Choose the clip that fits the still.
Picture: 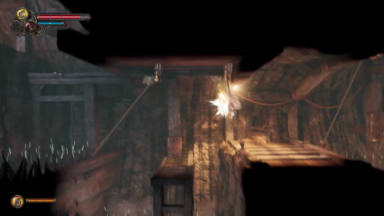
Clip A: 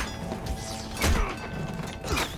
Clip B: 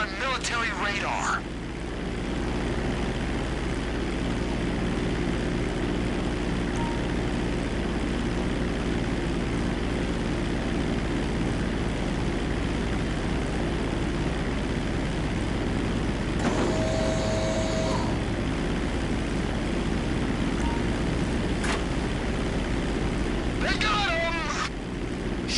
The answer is A